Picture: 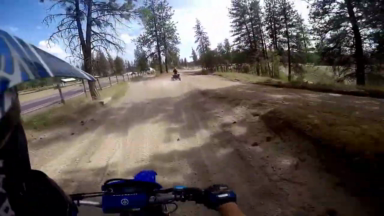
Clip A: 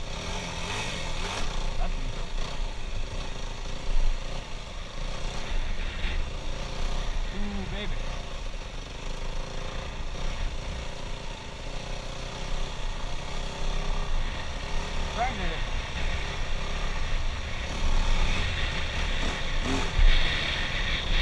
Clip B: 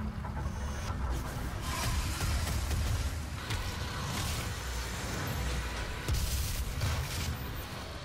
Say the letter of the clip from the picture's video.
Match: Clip A